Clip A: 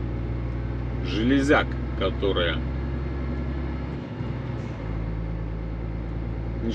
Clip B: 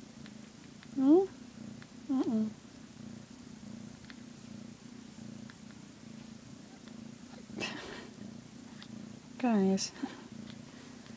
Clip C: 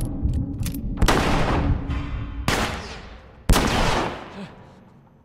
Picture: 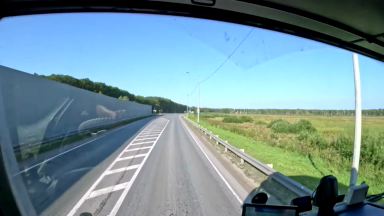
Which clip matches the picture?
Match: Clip A